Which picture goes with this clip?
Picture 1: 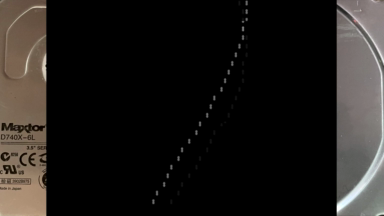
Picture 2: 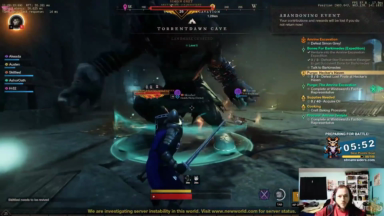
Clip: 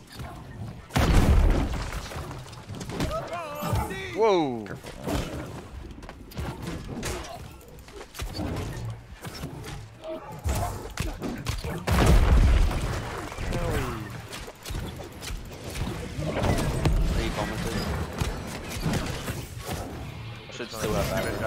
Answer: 2